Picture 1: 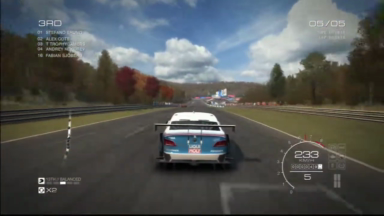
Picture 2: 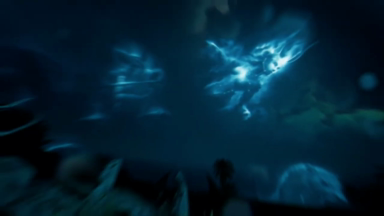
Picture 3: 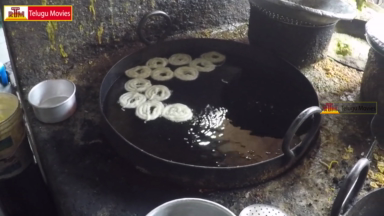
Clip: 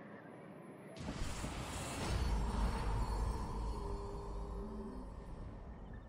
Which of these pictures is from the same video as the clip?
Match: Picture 2